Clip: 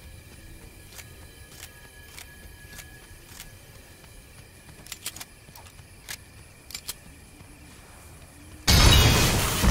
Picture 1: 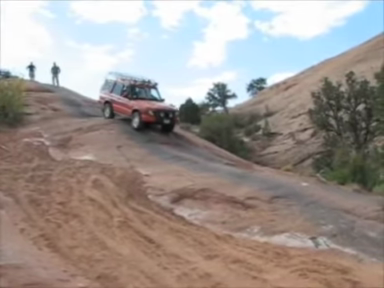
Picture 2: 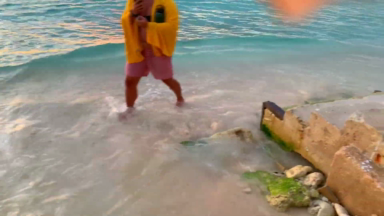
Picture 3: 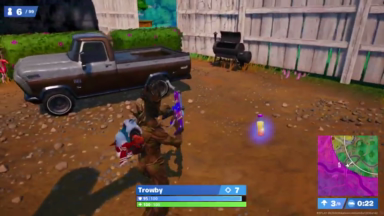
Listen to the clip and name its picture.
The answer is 3